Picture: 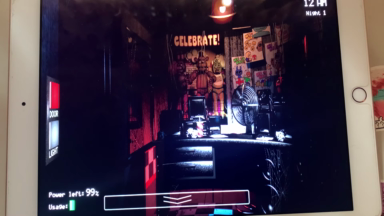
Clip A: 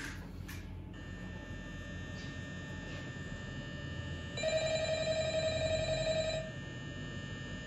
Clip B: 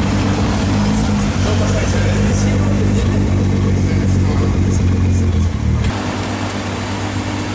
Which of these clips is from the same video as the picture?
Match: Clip A